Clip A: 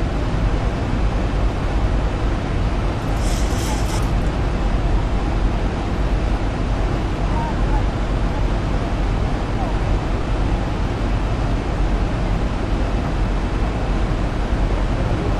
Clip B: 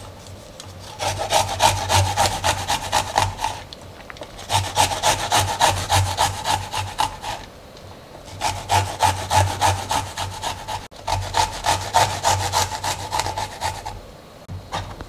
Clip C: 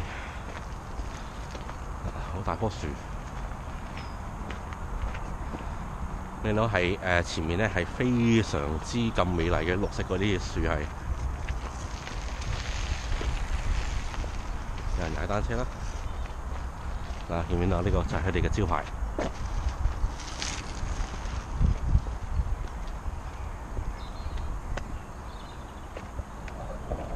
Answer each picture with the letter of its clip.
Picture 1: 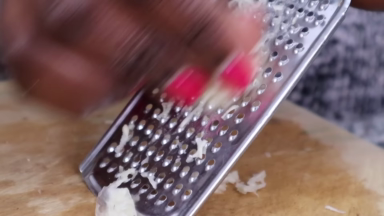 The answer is B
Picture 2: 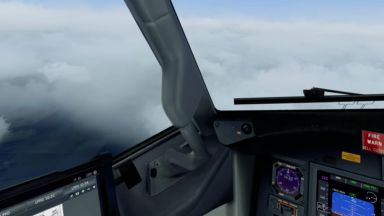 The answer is A